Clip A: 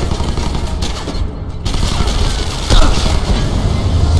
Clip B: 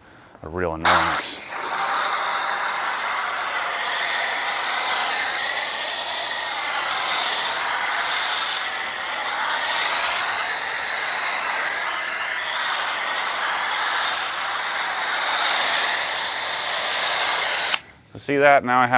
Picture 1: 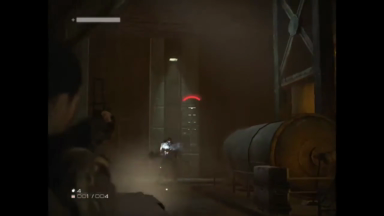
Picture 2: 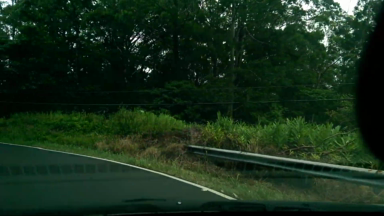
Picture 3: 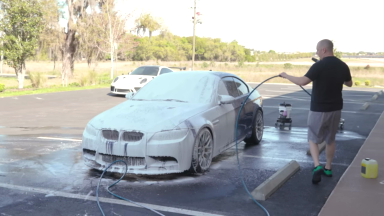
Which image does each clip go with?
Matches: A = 1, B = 3